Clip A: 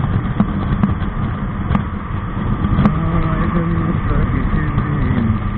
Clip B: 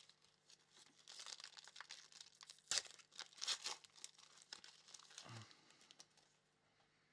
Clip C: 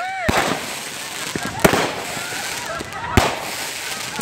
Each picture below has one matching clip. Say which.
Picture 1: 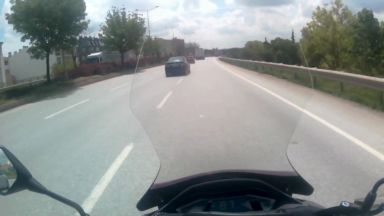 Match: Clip A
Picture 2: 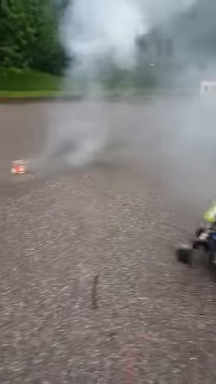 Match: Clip C